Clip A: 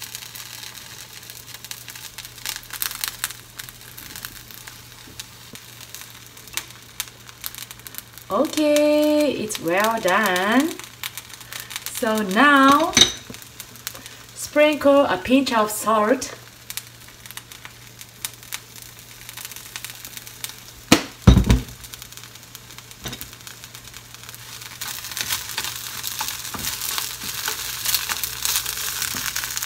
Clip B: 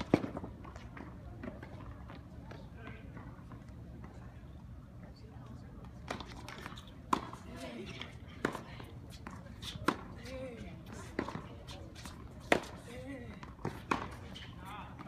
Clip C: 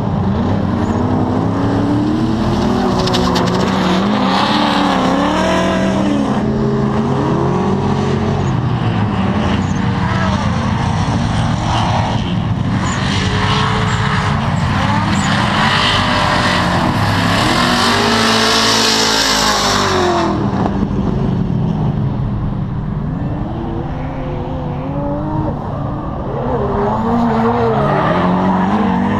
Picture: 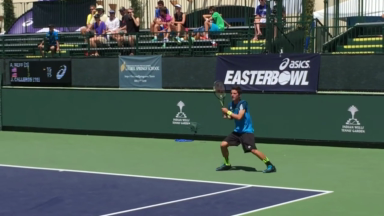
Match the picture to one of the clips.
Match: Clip B